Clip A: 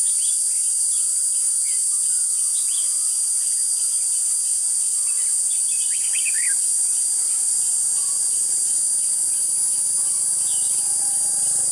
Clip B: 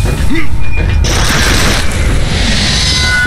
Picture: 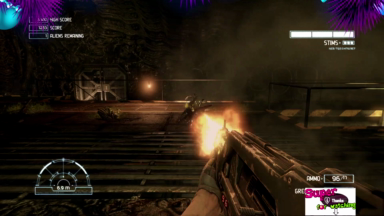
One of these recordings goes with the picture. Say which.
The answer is B